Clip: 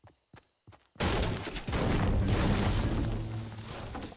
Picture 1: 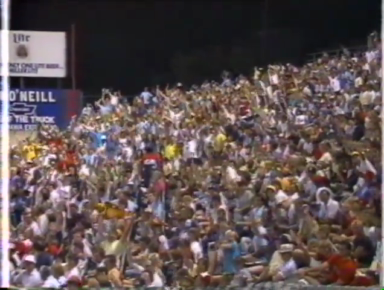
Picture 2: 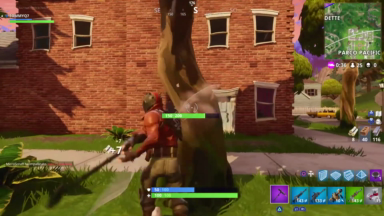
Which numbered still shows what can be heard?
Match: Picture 2